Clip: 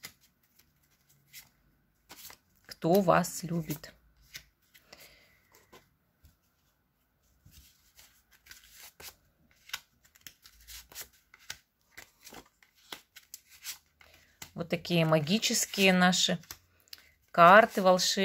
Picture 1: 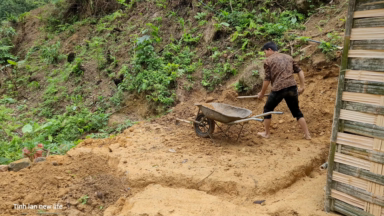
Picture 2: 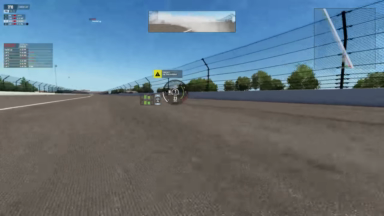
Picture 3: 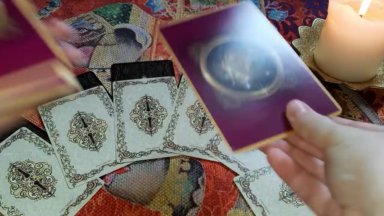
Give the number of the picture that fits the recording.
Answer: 3